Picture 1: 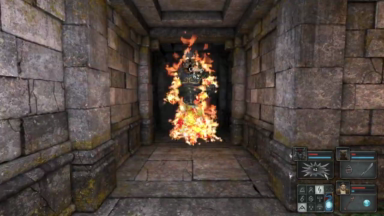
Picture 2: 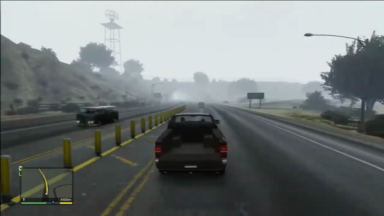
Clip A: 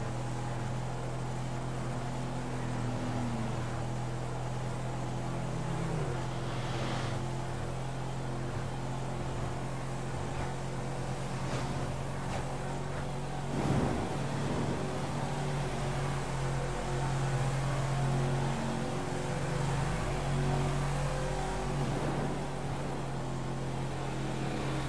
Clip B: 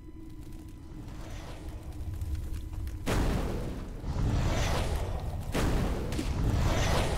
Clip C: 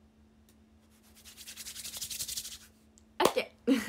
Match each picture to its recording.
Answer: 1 B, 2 A